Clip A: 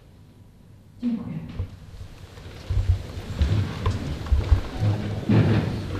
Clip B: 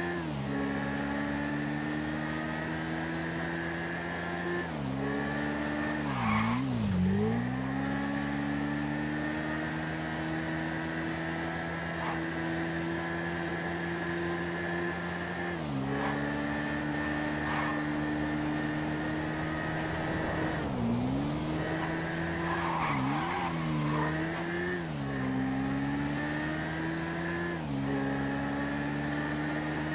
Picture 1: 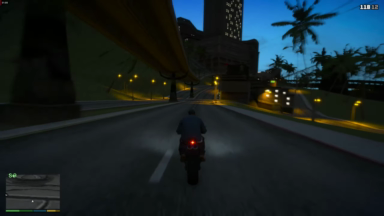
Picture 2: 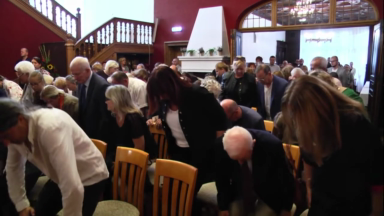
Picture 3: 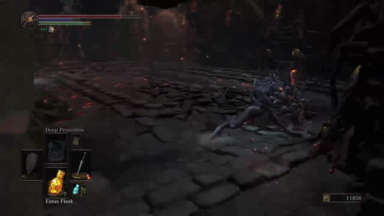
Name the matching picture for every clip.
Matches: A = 2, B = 1